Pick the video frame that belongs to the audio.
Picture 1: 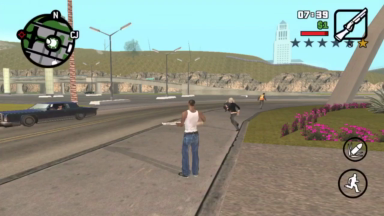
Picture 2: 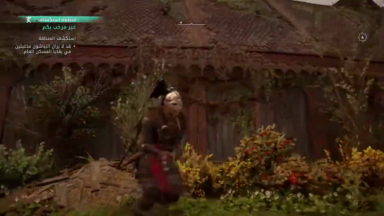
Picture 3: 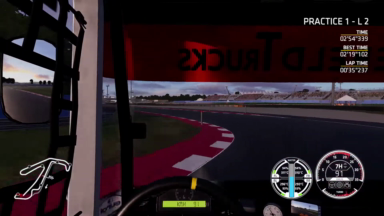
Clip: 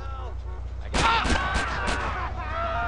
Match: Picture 1